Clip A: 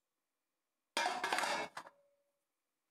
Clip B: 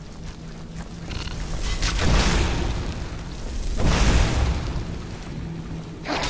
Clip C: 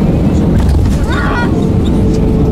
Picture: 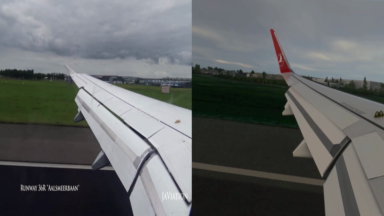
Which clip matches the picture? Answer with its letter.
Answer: C